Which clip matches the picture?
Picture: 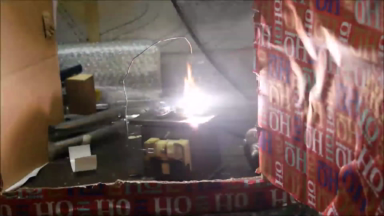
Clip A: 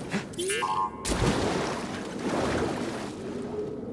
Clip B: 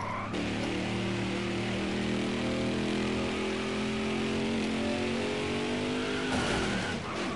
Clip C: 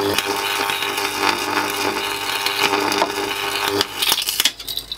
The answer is C